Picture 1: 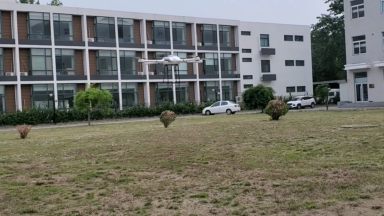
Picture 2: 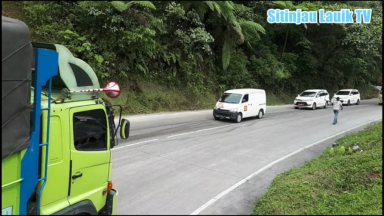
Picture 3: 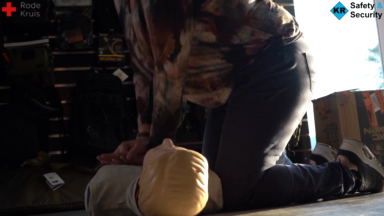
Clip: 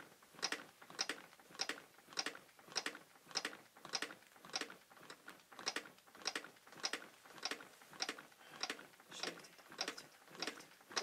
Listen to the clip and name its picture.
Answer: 3